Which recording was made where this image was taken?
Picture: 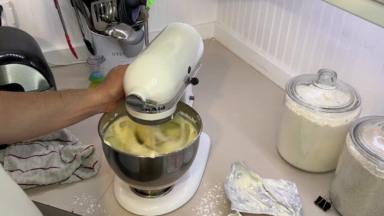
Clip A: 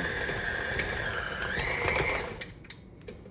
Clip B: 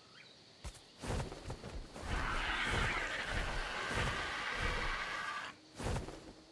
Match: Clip A